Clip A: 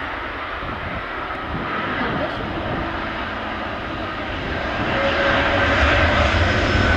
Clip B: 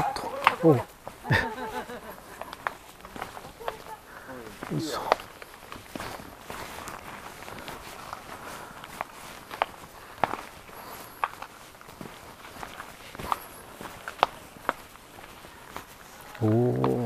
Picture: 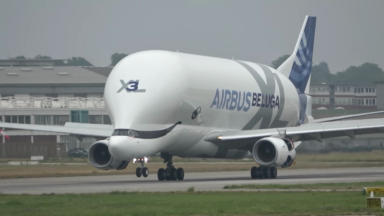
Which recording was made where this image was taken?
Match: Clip A